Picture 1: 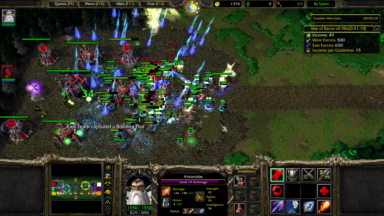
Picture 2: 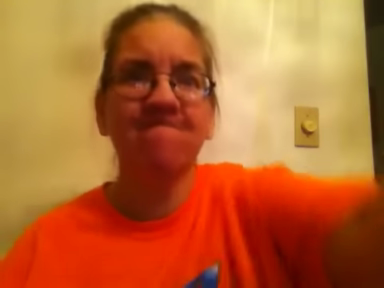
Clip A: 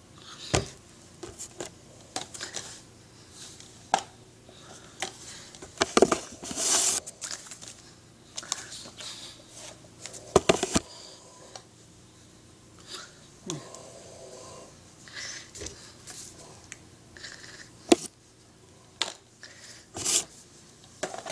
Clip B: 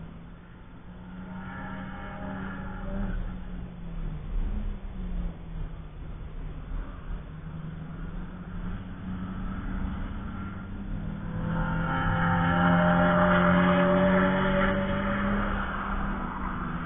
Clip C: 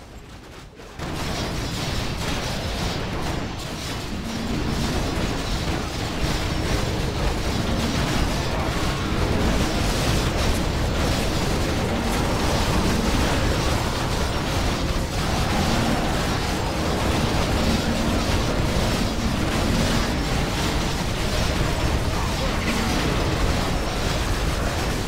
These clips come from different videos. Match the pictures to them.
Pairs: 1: C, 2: A